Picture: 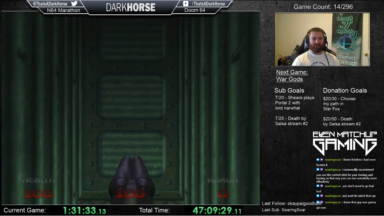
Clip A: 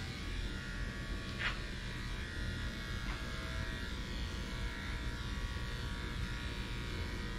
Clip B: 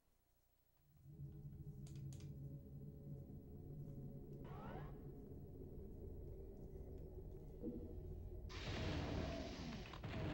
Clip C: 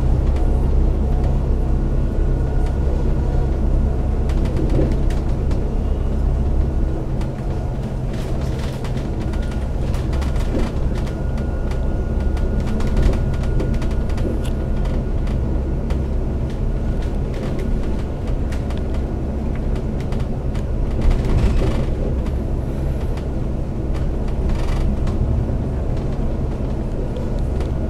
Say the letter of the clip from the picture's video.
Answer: B